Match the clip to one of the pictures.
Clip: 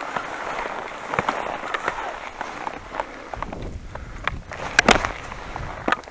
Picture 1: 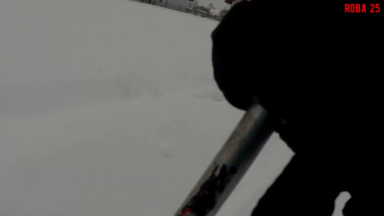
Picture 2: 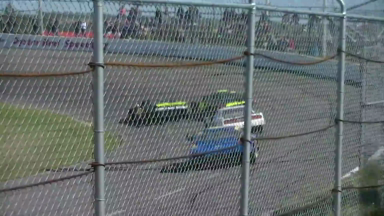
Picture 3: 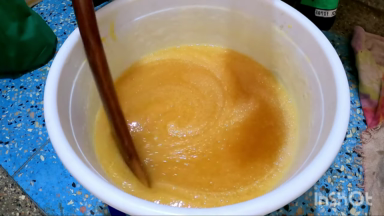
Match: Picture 1